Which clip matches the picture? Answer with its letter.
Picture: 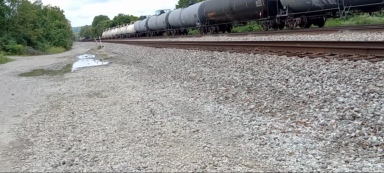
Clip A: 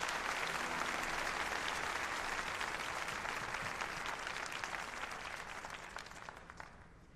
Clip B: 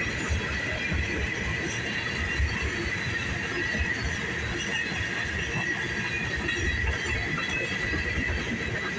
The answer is B